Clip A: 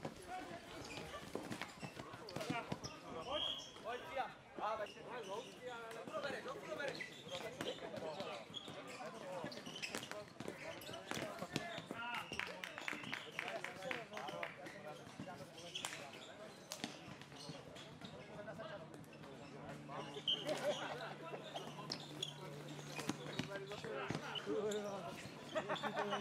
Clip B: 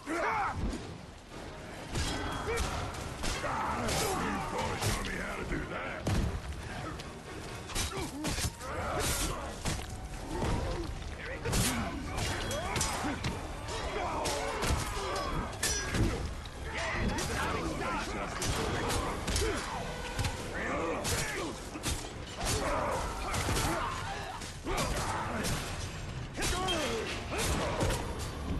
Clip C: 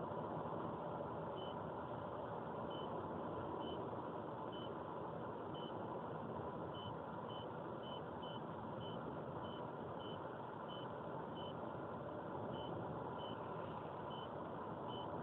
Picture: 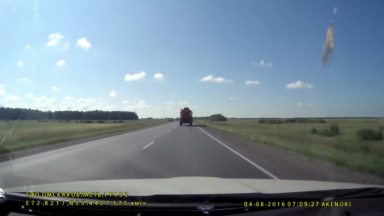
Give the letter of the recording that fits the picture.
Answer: C